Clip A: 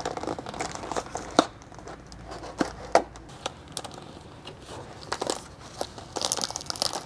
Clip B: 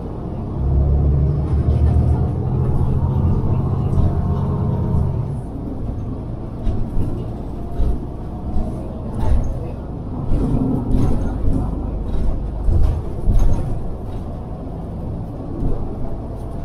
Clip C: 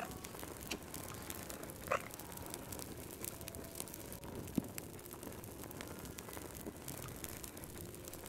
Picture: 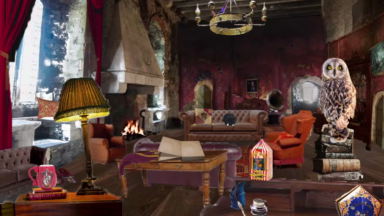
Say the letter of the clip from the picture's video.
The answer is C